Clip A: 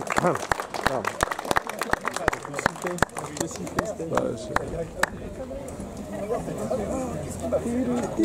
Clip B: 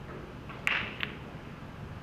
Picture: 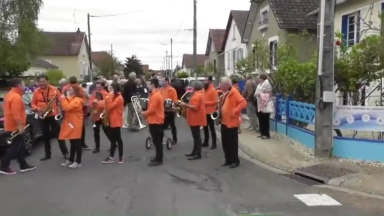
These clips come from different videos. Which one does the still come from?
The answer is A